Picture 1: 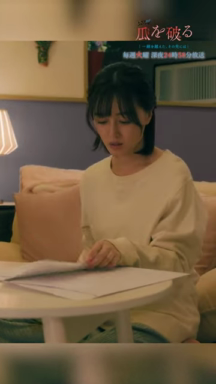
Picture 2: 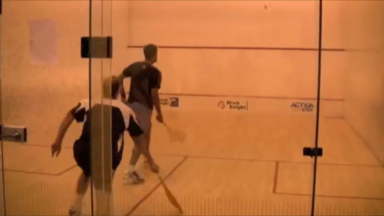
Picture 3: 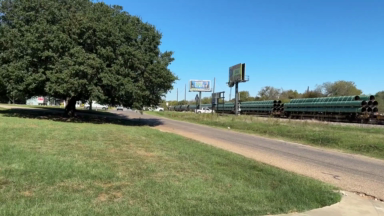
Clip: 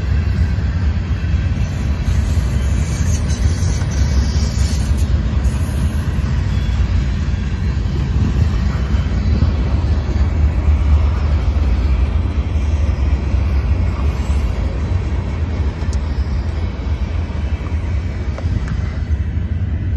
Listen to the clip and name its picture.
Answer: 3